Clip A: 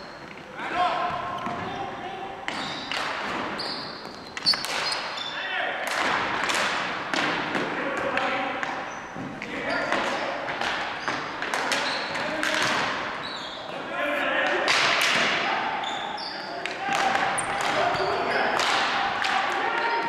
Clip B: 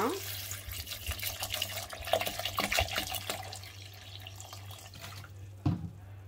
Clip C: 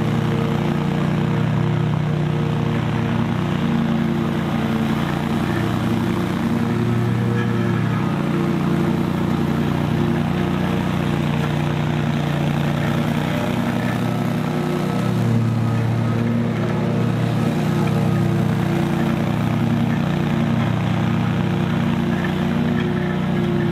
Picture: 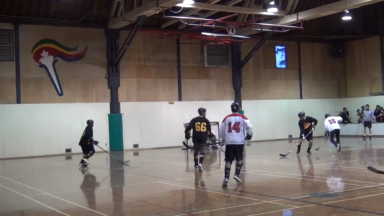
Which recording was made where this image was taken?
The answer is A